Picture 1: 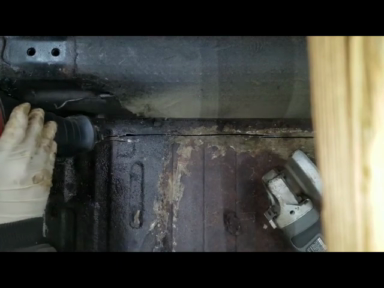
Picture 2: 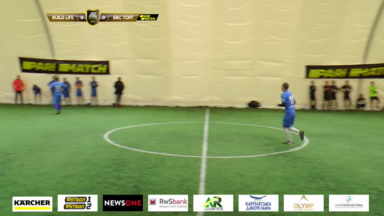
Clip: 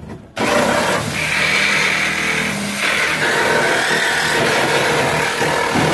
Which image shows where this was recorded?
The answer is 1